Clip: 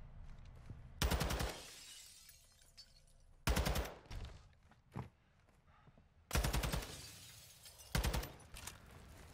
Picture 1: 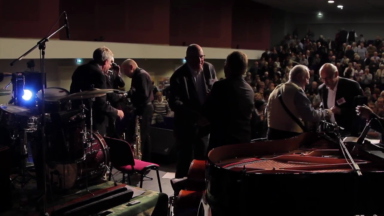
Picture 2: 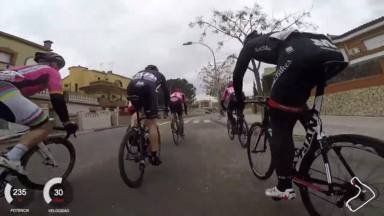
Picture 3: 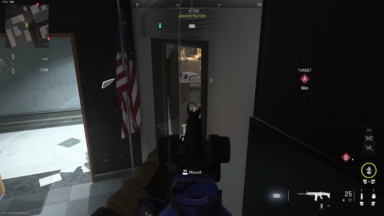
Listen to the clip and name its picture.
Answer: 3